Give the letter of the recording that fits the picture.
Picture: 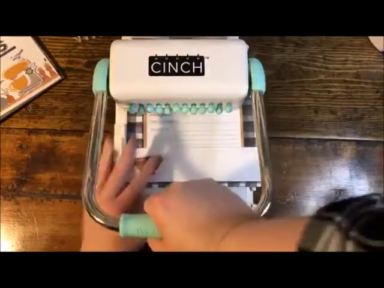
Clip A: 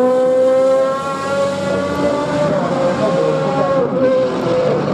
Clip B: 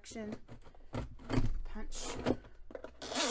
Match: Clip B